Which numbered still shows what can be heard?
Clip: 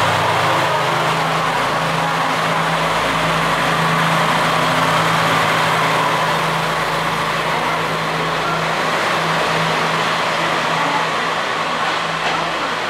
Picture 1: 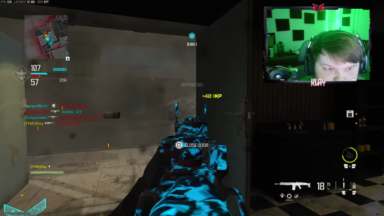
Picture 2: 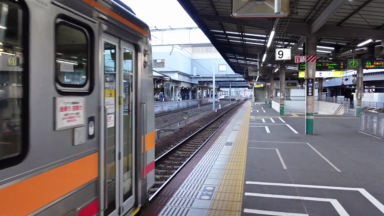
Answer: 2